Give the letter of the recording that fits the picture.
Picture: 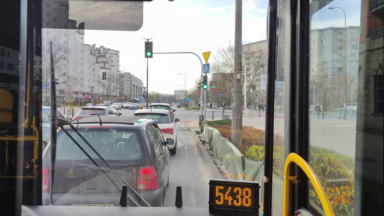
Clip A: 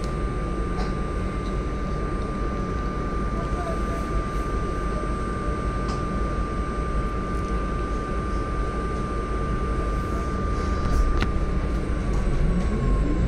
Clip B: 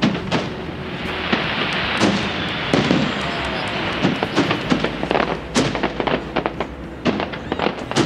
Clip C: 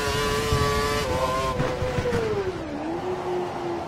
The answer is A